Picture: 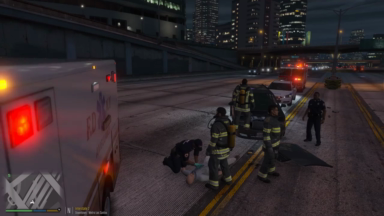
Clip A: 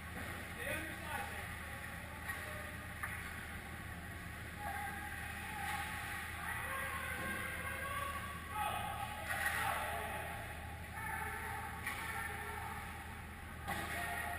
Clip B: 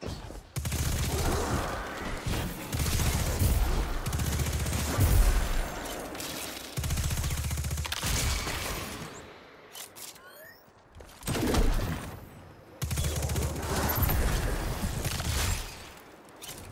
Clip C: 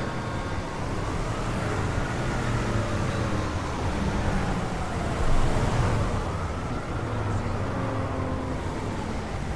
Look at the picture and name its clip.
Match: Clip C